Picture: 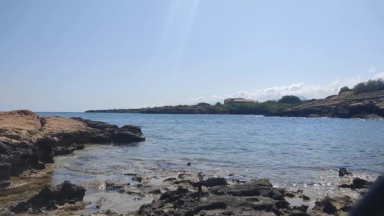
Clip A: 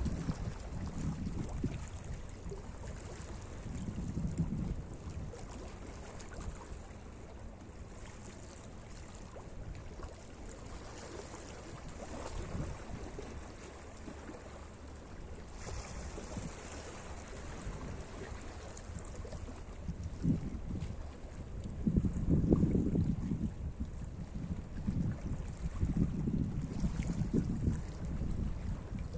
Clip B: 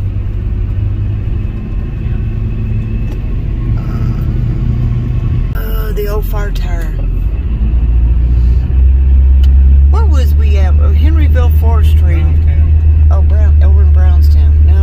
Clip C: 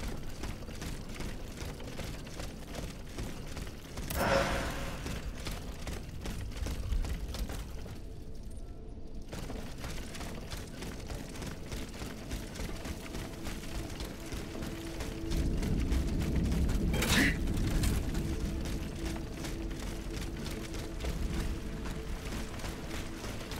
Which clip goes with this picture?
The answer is A